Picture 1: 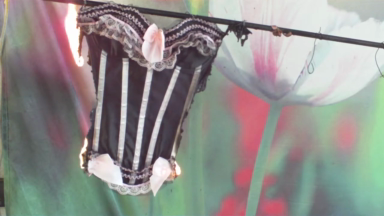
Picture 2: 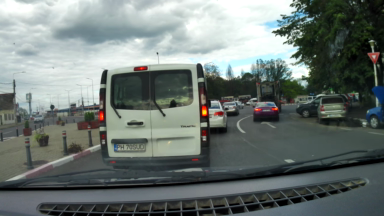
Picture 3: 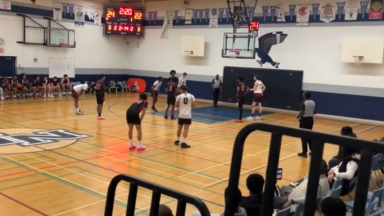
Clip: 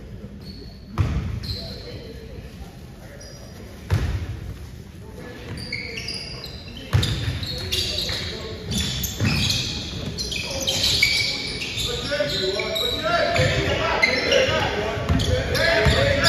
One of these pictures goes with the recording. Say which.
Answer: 3